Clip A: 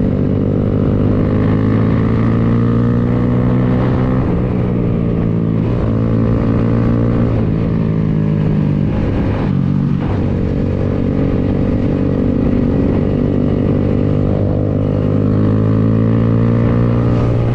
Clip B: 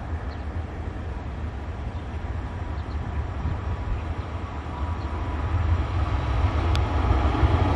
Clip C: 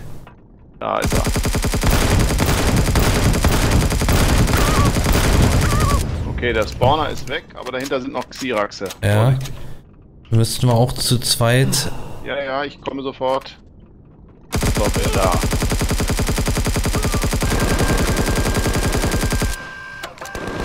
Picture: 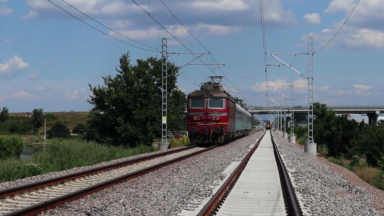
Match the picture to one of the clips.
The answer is B